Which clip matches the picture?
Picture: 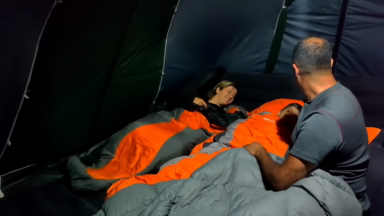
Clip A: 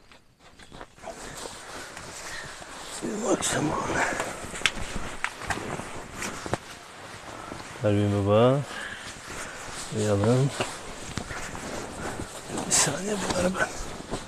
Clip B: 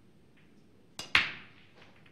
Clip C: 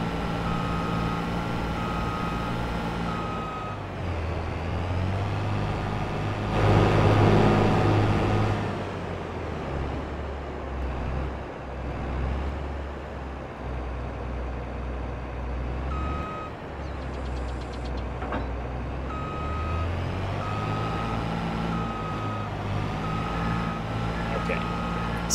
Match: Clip A